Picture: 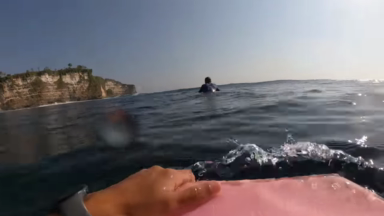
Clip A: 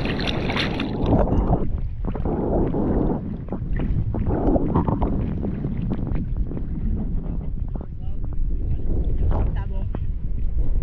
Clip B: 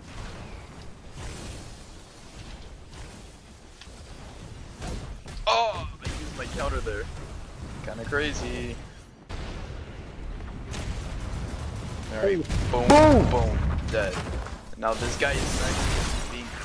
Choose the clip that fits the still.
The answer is A